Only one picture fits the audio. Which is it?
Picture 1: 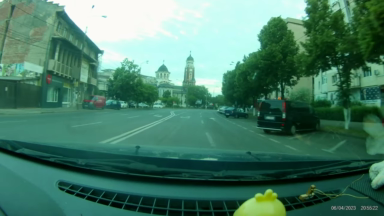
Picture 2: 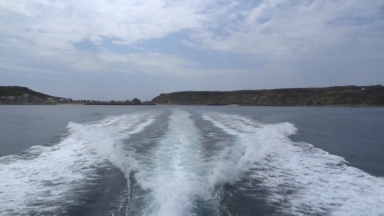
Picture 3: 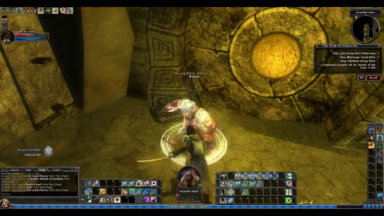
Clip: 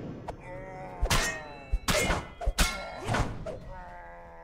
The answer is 3